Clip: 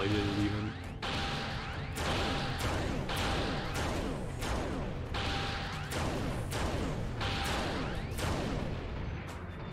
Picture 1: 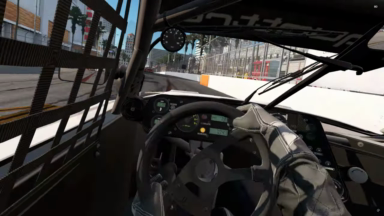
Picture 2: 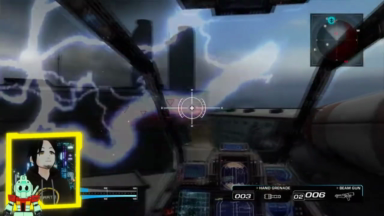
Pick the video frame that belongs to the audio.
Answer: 2